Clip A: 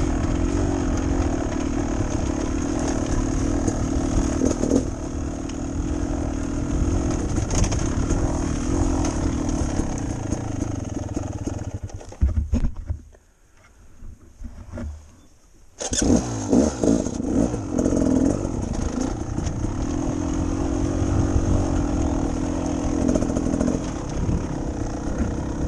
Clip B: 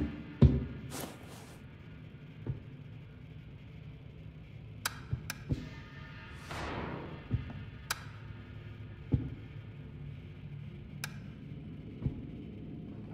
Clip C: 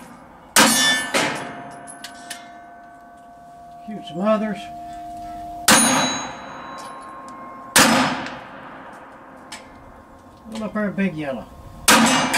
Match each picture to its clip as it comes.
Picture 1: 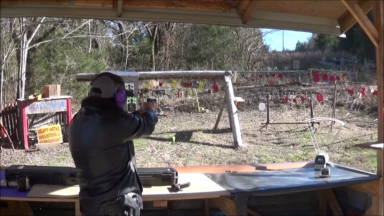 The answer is C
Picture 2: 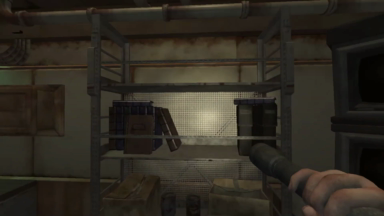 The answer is B